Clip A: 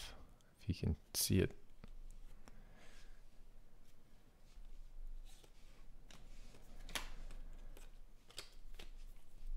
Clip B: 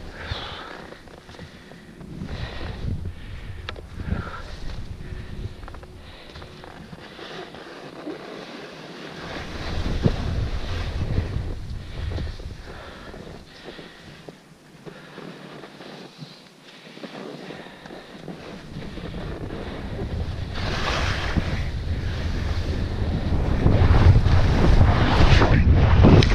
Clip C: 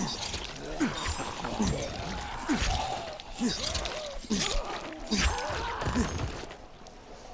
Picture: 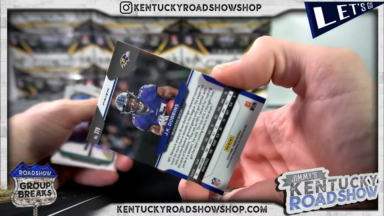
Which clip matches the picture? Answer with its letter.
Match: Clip A